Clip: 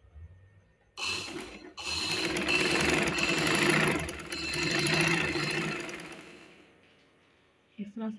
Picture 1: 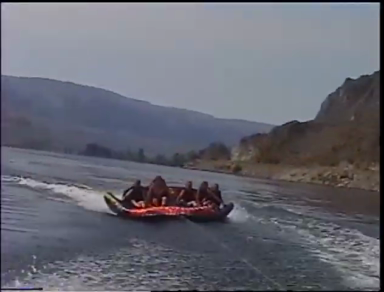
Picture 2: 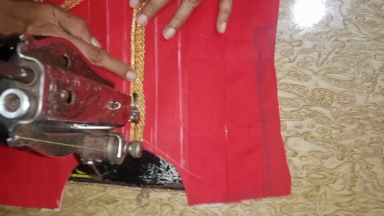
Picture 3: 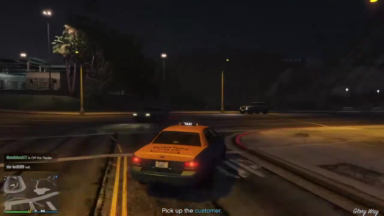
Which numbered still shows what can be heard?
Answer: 2